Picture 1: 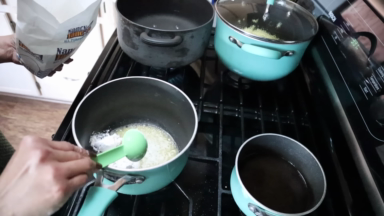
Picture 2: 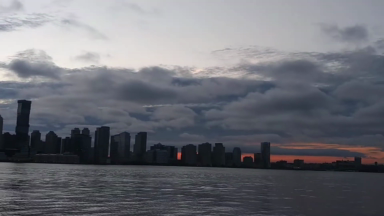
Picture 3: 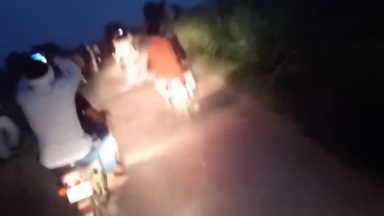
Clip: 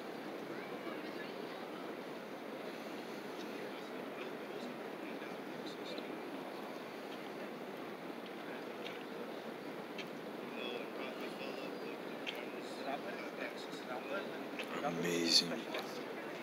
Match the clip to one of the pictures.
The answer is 2